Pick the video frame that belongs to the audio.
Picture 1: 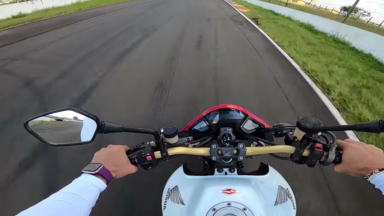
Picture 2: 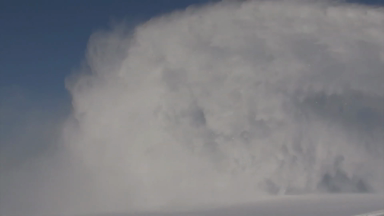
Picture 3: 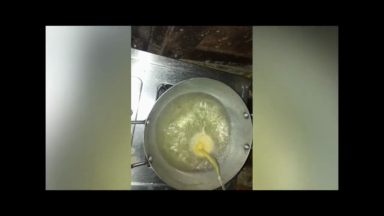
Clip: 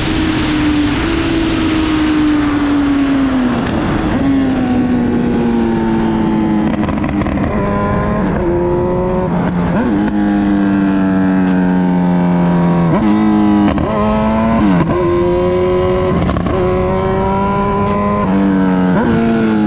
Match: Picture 1